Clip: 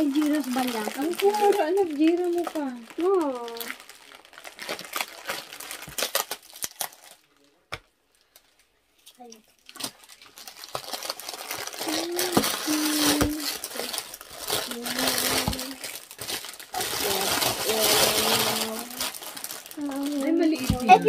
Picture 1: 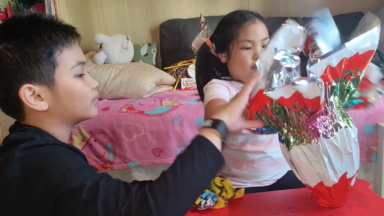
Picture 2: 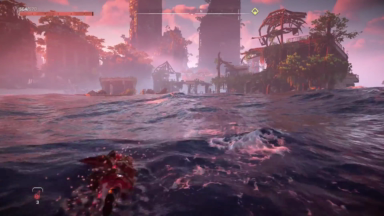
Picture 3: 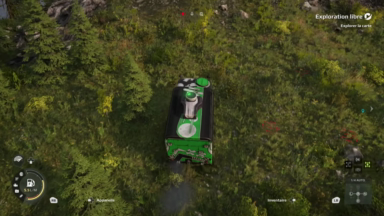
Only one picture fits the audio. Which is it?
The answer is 1